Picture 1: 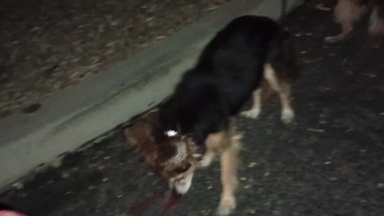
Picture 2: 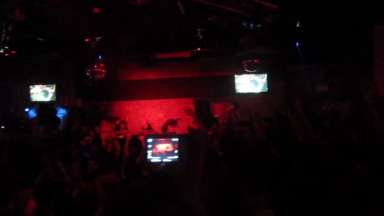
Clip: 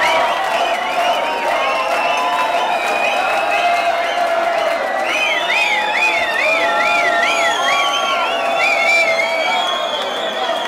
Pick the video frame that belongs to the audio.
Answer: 2